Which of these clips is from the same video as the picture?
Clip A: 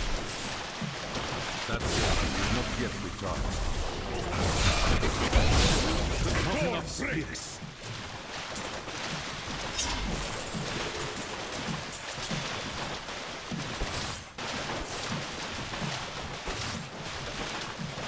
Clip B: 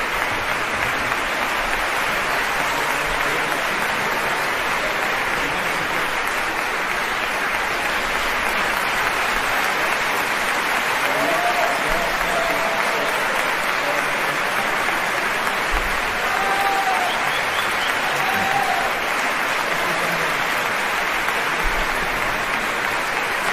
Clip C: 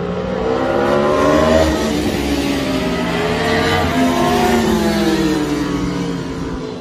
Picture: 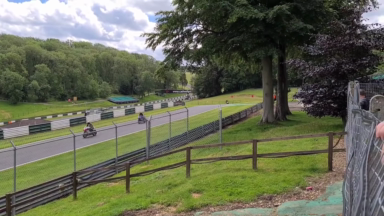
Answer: C